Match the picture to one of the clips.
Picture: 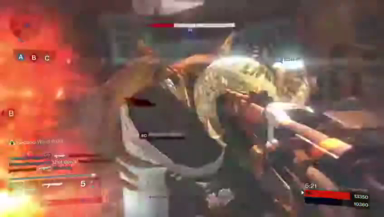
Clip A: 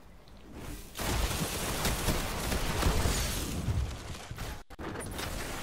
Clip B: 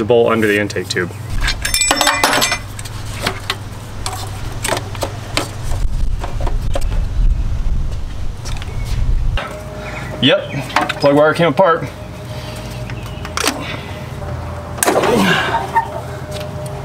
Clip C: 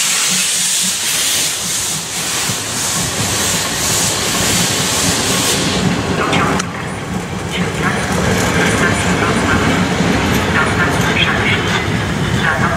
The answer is A